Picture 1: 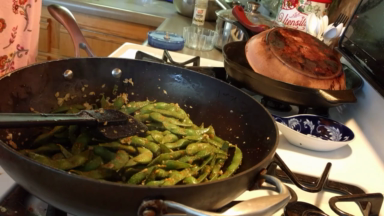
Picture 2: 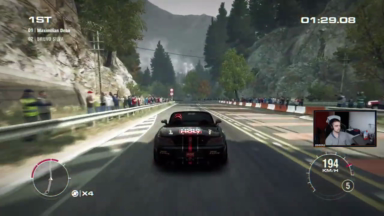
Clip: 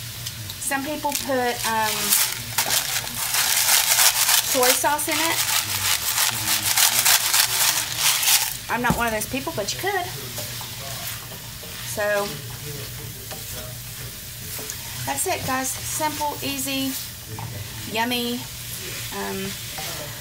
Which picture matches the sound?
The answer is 1